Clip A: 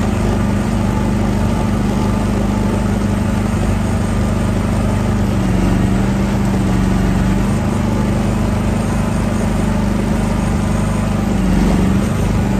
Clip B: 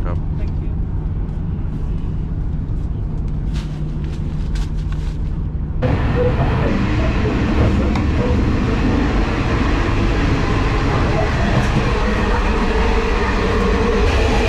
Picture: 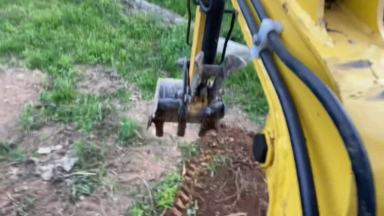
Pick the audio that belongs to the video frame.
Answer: A